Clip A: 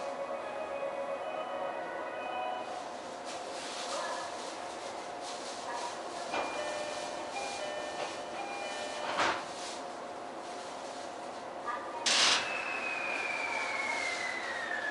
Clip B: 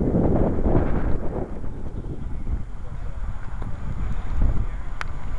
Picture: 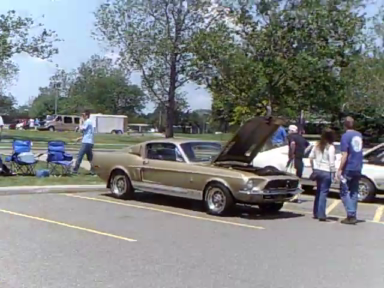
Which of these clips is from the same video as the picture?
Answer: B